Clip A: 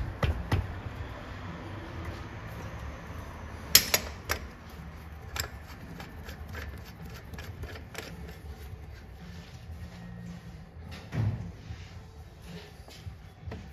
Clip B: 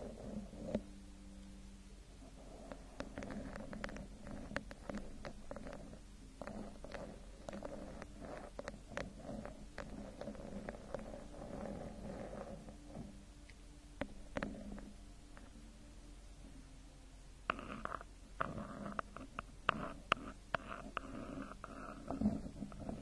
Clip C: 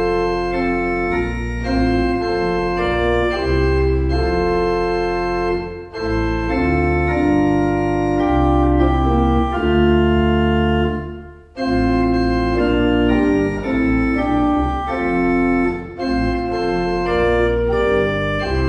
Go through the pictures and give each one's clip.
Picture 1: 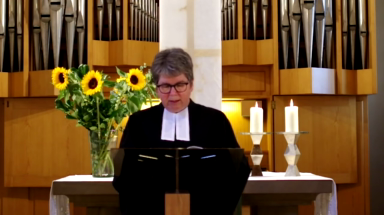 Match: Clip C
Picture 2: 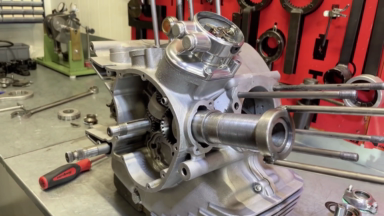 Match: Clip A